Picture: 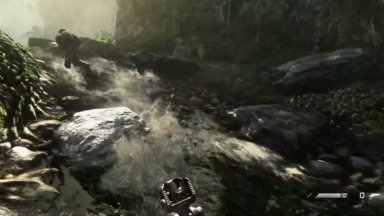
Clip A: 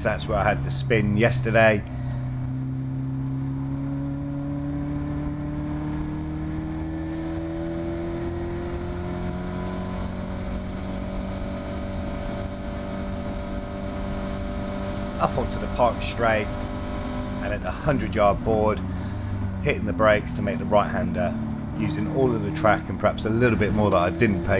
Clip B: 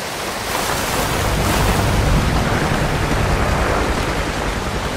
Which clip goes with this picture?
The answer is B